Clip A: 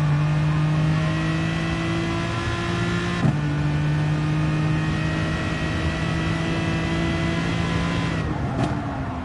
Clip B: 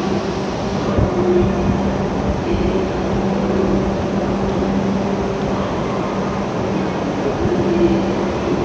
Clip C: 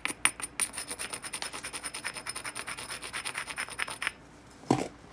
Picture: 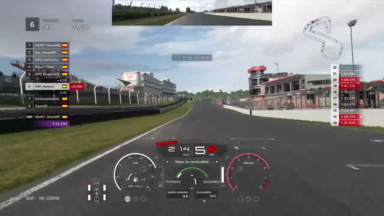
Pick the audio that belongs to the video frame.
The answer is A